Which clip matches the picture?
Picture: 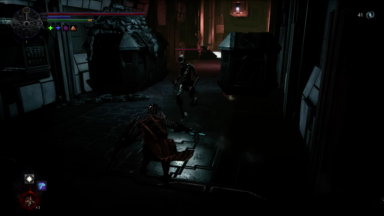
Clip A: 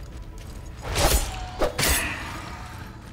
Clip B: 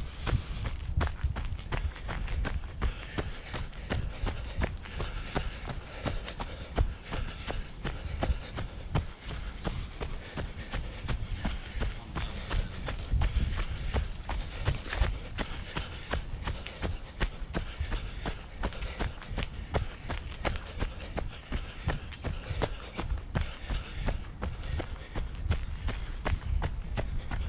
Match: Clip A